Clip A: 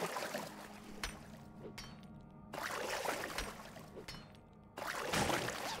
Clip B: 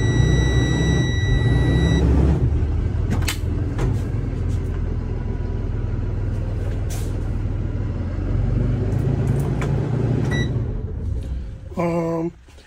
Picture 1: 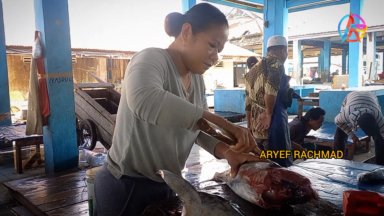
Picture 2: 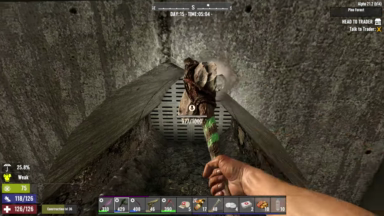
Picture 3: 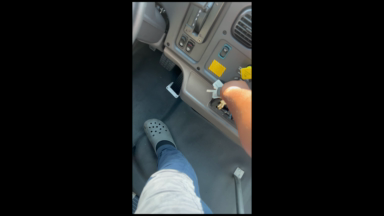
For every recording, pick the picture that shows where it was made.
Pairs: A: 2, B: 3